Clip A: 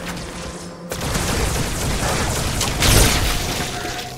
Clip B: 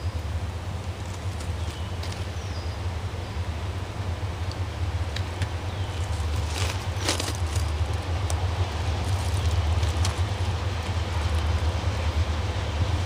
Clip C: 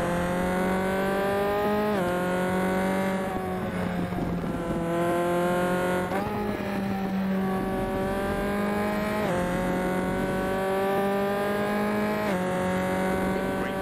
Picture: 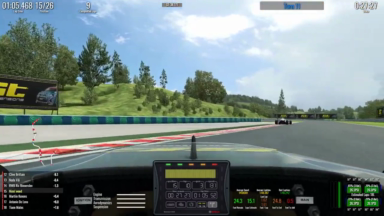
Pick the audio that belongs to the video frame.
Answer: C